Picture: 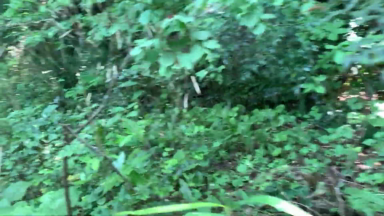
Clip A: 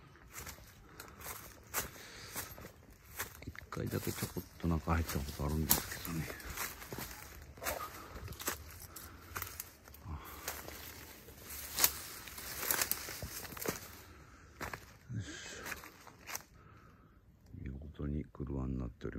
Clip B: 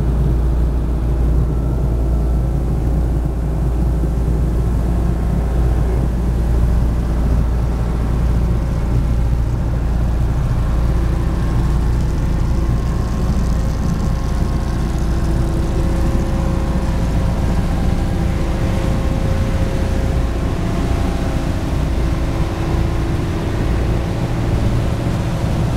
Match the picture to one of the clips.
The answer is A